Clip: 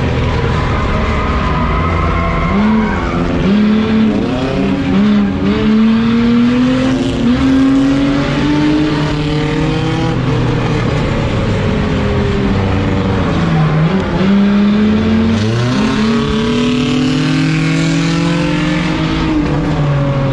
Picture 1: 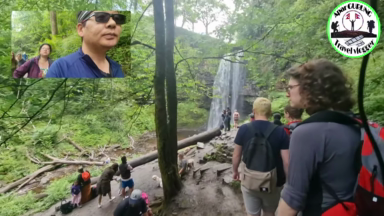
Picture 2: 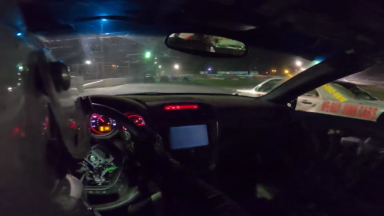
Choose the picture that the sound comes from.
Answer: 2